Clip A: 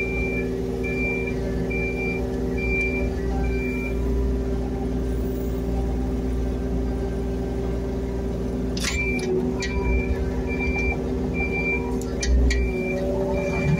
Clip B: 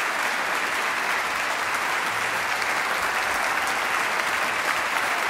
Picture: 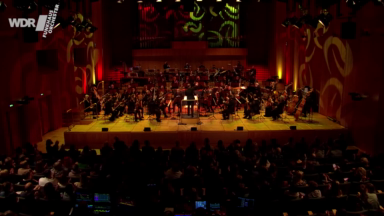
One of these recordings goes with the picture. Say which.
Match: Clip B